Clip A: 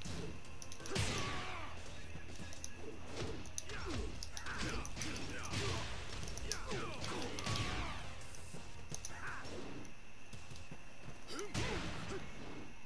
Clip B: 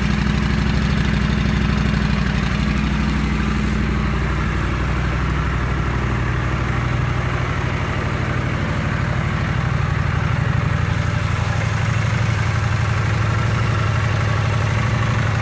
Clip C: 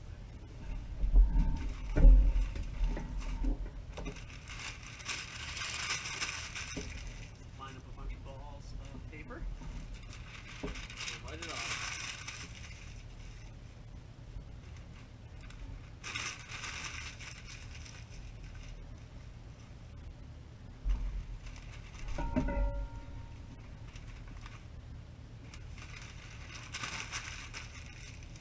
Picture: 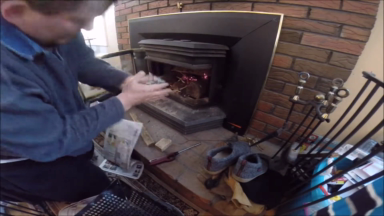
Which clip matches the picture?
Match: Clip C